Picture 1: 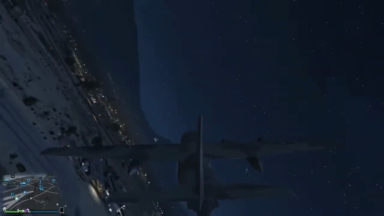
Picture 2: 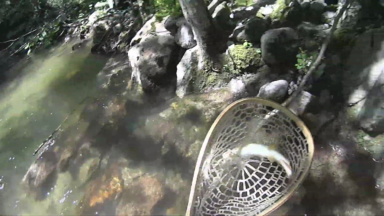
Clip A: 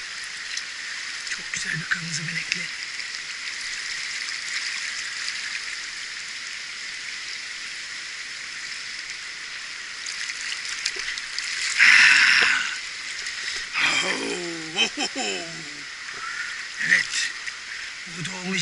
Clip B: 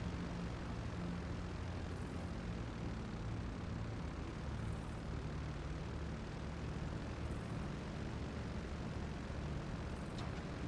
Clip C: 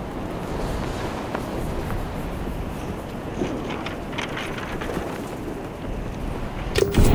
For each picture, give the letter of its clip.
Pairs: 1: B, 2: A